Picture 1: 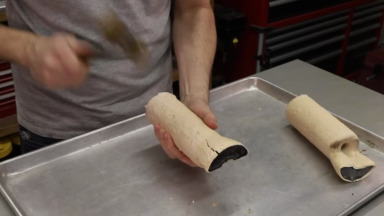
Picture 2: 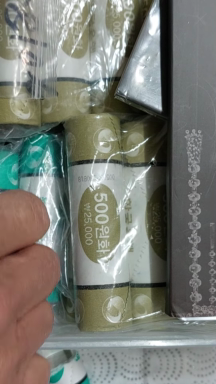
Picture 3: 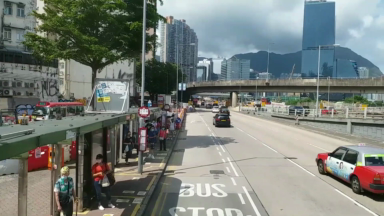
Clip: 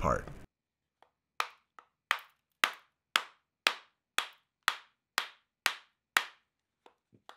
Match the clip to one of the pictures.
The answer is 1